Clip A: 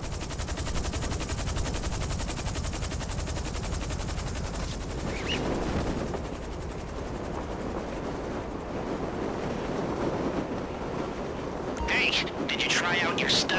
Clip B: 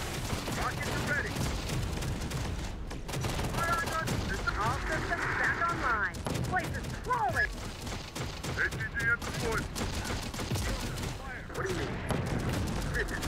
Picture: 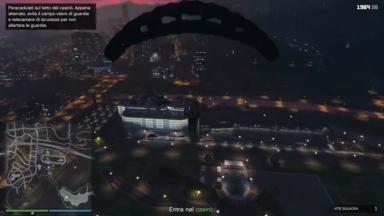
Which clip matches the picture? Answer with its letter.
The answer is A